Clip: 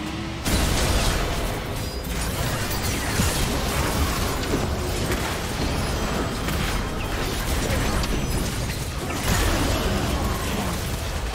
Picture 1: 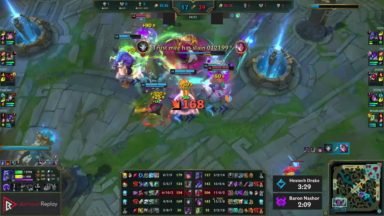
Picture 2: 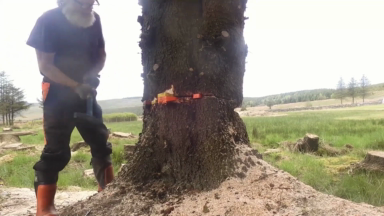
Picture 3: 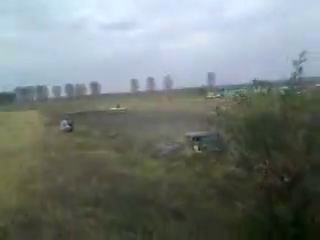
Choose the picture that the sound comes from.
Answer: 1